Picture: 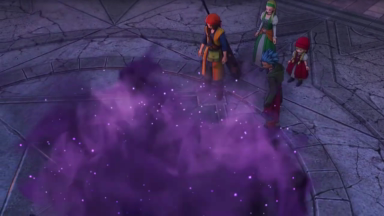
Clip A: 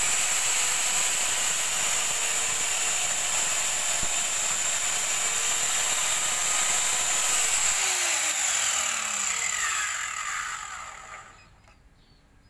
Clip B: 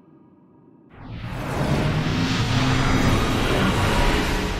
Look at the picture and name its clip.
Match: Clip B